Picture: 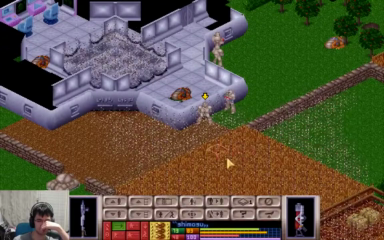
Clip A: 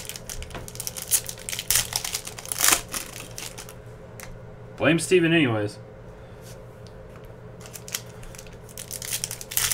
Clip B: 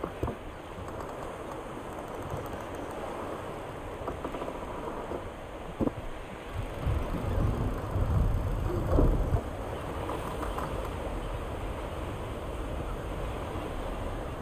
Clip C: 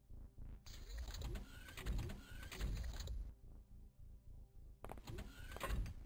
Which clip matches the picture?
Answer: C